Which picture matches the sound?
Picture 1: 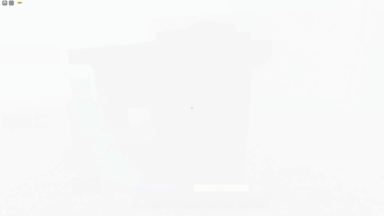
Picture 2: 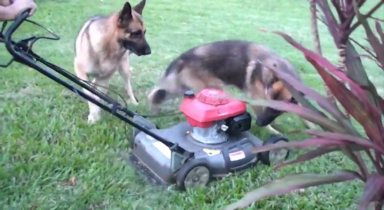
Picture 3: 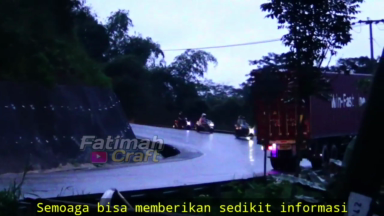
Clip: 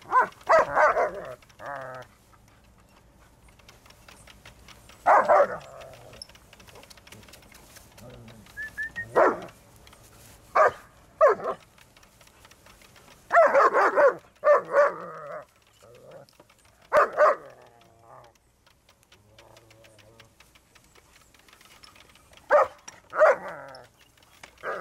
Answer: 2